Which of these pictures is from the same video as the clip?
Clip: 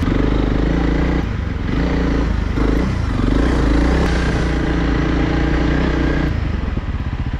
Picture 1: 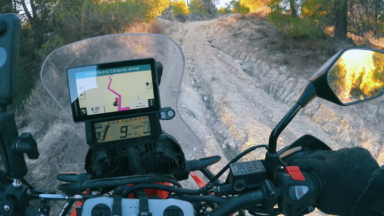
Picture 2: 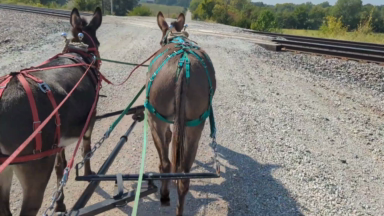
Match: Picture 1